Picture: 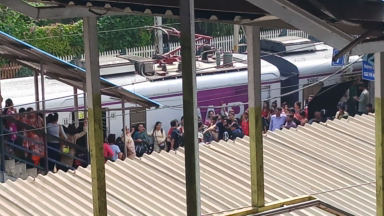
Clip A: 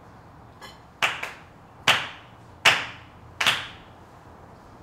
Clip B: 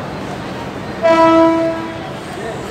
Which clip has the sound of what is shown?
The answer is B